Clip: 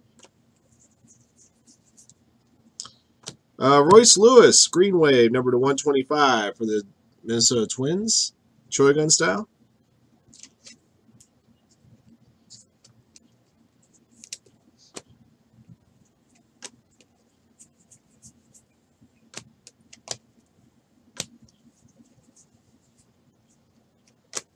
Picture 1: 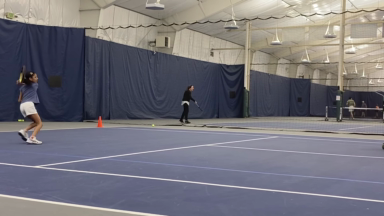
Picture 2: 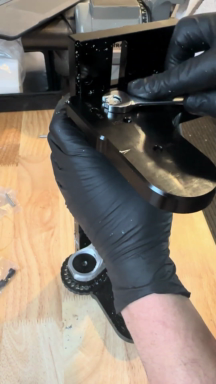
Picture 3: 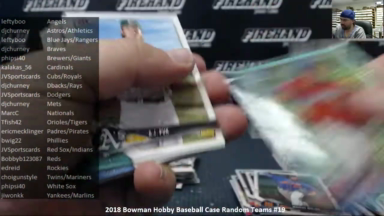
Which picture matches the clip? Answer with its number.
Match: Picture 3